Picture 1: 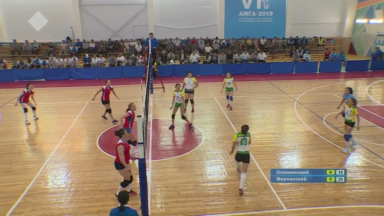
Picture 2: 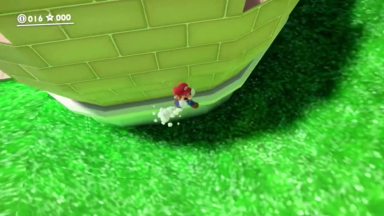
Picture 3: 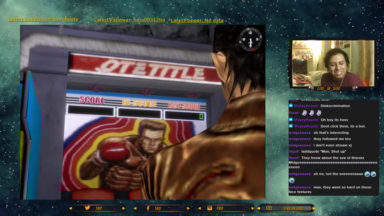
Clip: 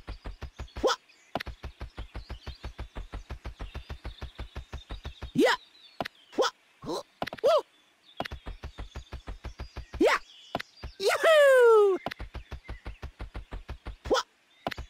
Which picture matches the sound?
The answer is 2